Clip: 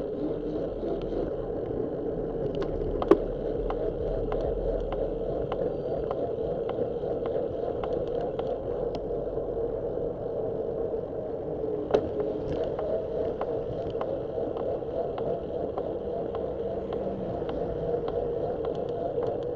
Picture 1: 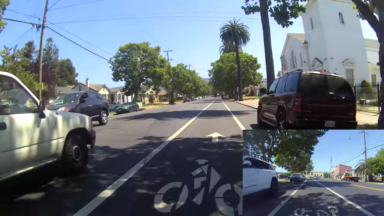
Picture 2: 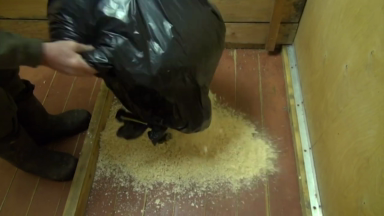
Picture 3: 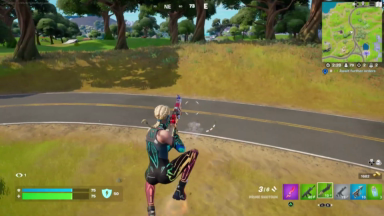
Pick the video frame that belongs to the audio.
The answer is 1